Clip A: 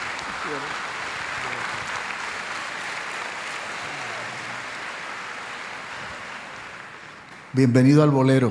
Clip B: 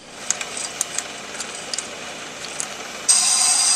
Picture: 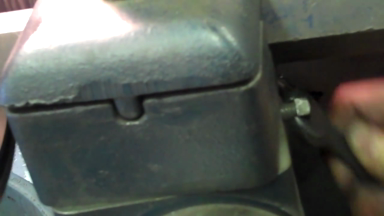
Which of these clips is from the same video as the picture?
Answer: B